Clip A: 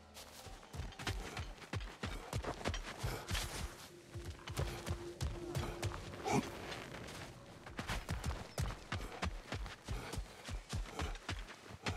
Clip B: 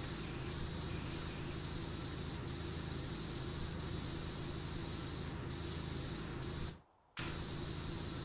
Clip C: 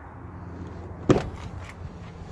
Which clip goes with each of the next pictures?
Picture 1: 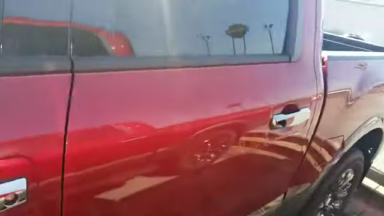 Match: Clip C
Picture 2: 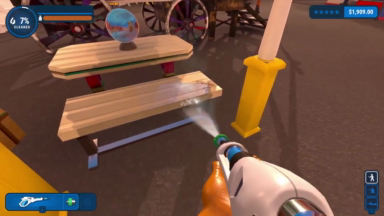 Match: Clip B